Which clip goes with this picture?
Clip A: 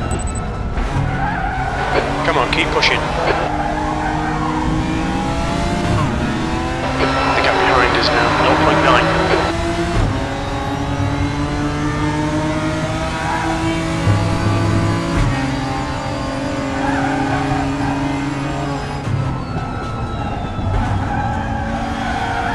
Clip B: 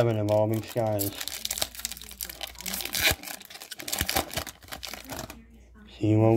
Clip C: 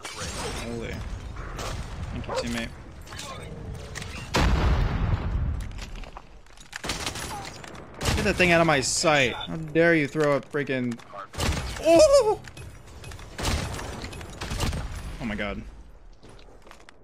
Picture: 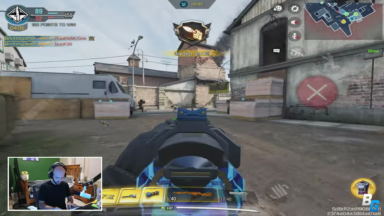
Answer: C